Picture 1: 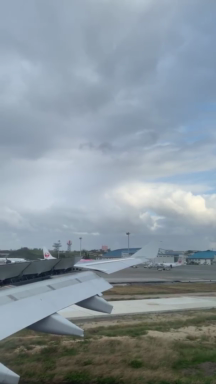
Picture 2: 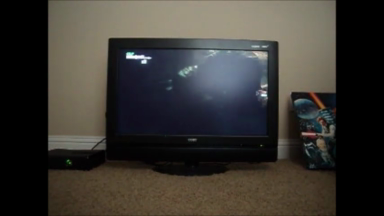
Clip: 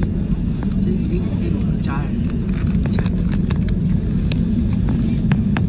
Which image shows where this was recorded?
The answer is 1